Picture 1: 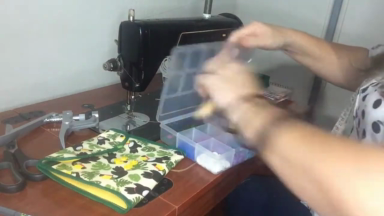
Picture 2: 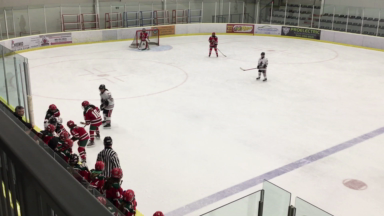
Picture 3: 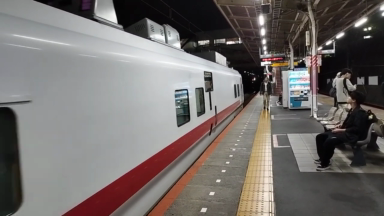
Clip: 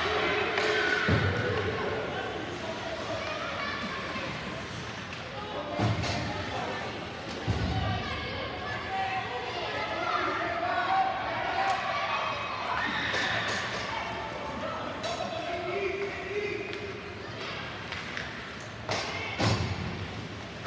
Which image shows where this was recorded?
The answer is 2